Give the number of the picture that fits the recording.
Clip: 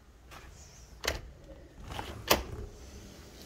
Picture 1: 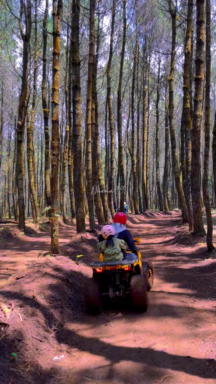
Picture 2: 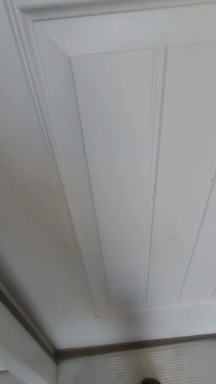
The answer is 2